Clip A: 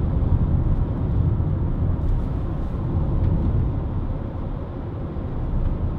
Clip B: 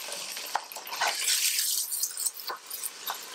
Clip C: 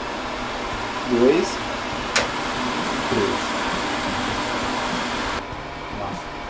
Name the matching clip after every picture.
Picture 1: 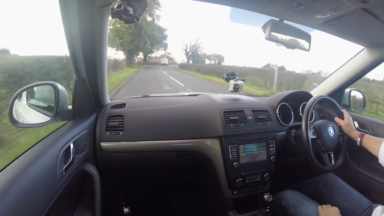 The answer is A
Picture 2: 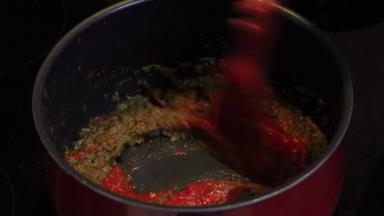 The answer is B